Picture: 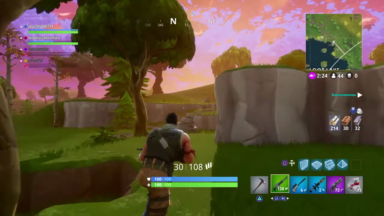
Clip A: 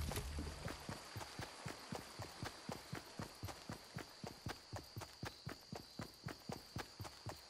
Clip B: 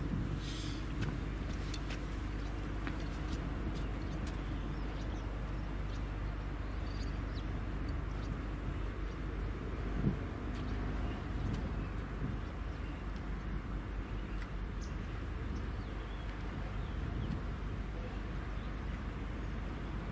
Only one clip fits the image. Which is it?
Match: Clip A